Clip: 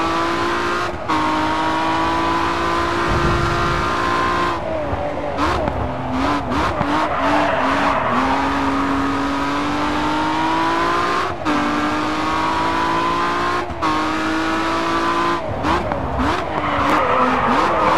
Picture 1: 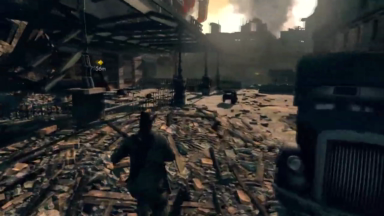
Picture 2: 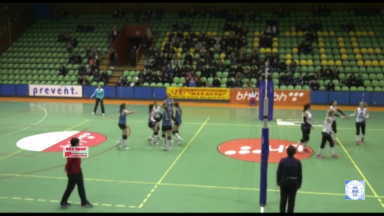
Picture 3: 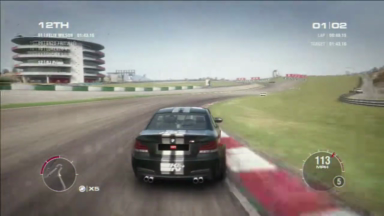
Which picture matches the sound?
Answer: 3